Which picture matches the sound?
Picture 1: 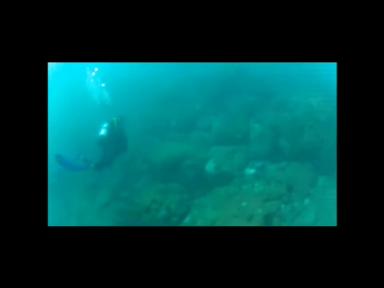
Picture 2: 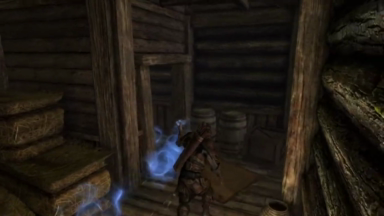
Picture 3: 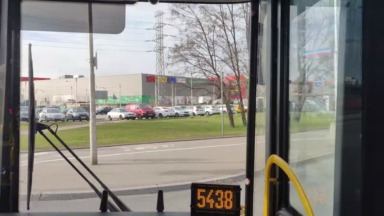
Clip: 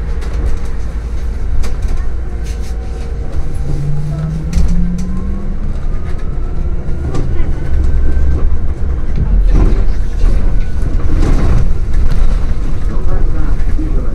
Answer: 3